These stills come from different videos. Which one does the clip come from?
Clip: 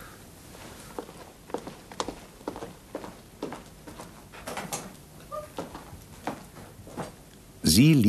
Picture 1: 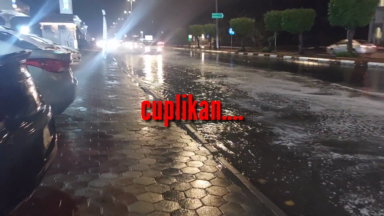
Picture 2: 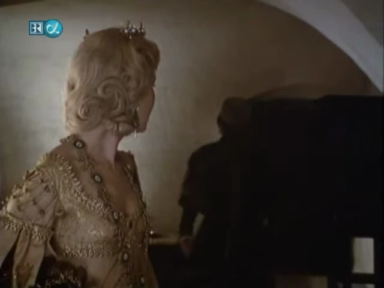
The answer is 2